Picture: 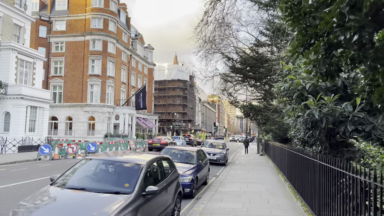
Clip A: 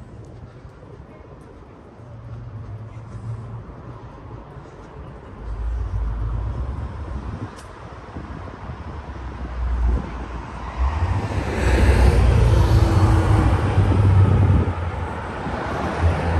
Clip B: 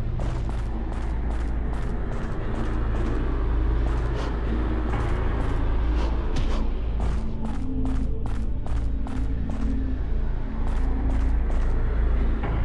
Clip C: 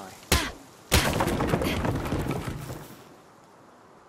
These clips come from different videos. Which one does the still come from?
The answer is A